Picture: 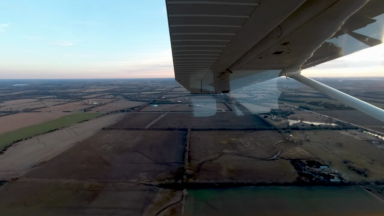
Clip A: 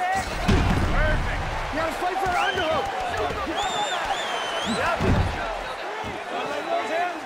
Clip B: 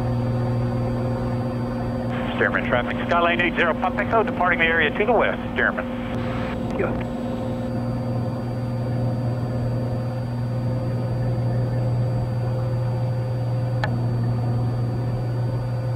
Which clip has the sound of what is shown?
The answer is B